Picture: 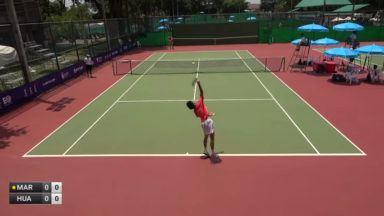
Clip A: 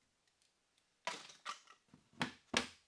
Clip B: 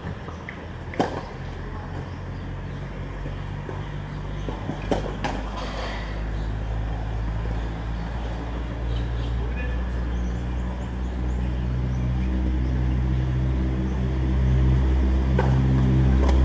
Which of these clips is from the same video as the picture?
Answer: B